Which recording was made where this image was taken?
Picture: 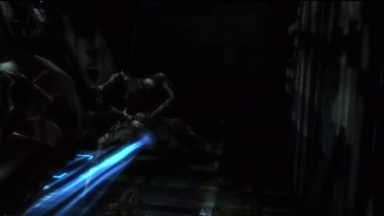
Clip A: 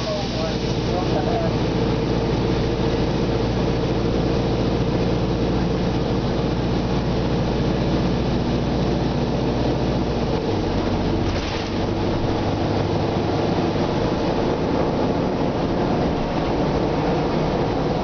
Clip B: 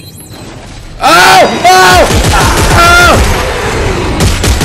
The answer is B